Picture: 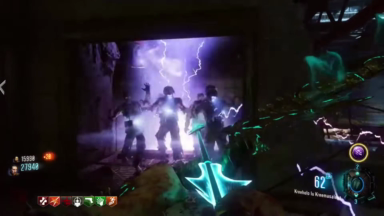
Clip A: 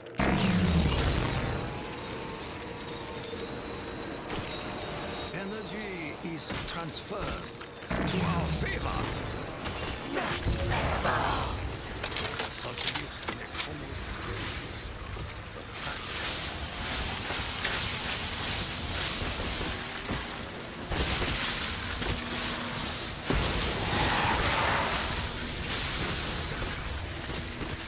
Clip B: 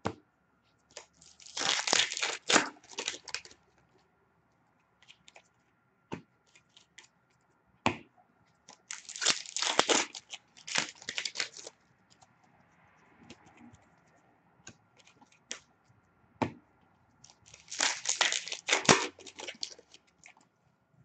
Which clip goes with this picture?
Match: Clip A